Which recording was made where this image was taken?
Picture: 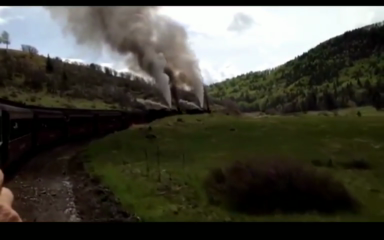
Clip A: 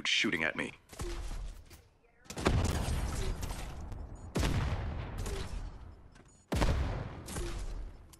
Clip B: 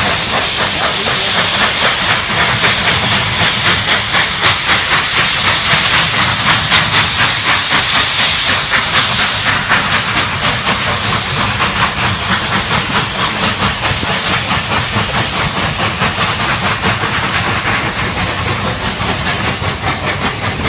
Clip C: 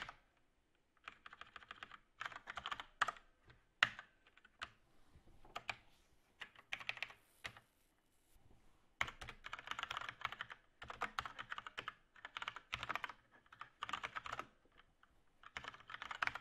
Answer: B